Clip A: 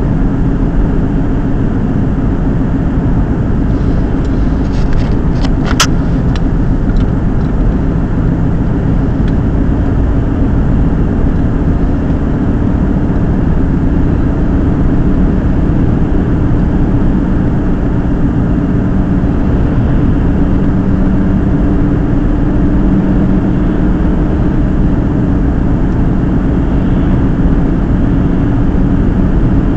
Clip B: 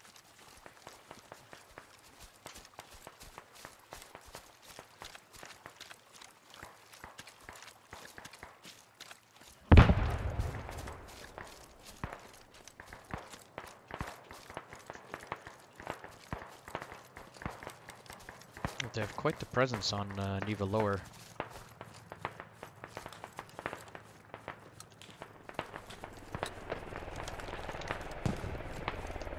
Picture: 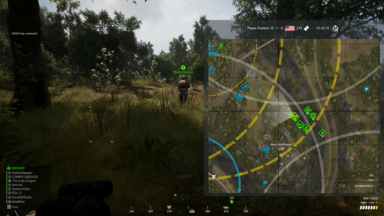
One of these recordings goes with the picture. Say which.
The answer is B